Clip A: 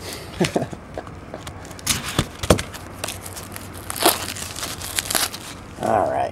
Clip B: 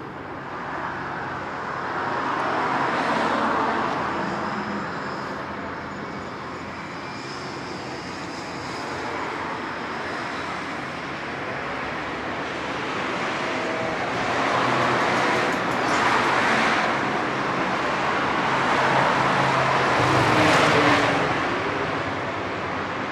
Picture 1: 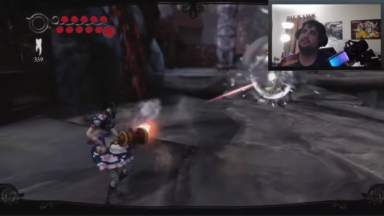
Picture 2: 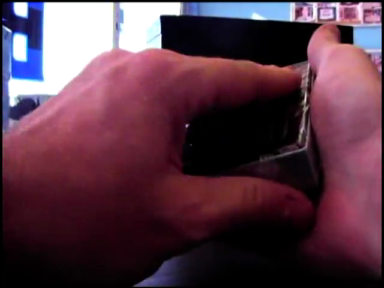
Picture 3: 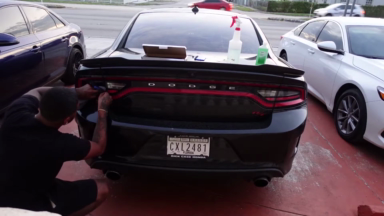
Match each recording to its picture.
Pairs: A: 2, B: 3